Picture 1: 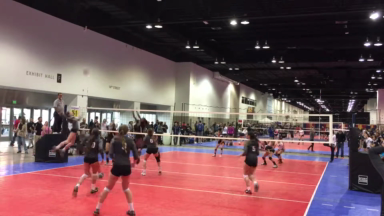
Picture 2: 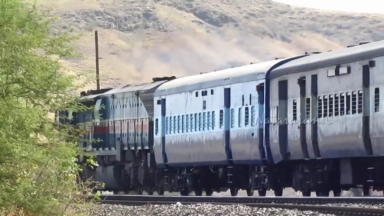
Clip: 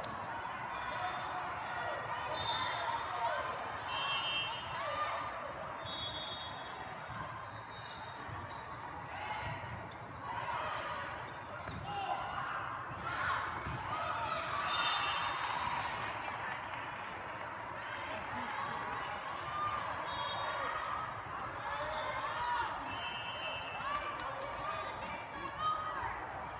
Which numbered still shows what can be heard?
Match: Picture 1